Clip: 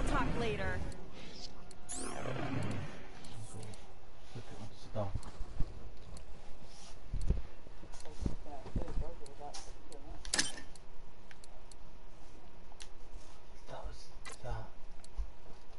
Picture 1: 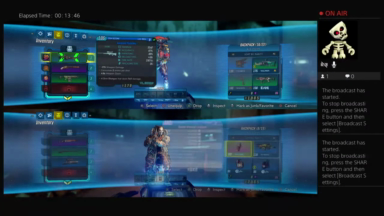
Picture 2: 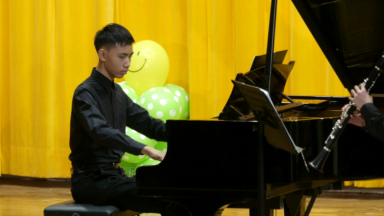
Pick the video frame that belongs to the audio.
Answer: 1